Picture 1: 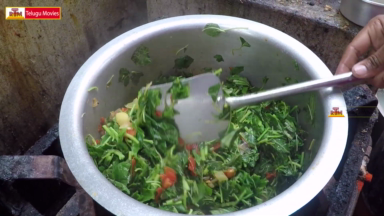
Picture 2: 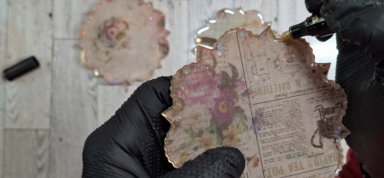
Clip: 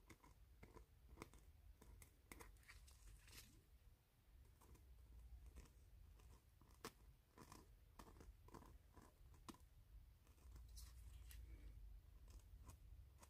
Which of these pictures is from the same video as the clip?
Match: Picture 2